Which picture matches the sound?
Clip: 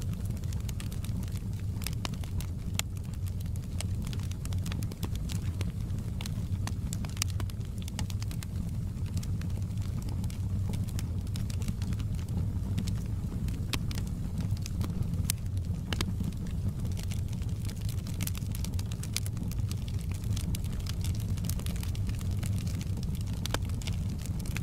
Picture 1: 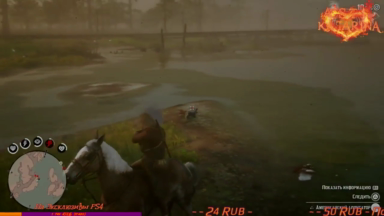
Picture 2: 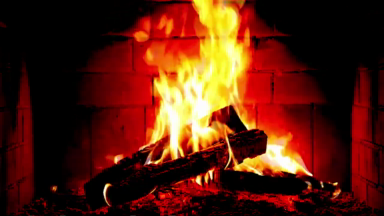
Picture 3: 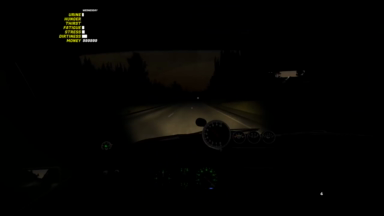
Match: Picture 2